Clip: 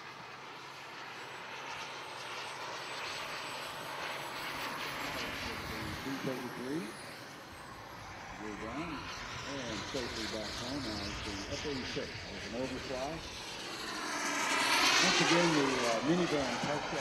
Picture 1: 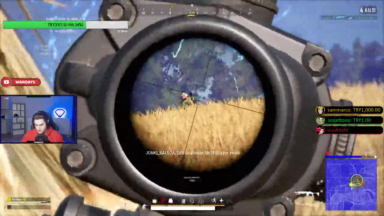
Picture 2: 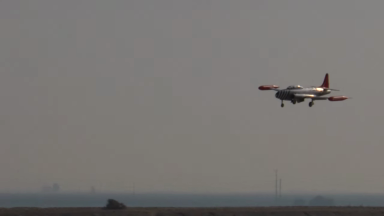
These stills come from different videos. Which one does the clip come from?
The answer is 2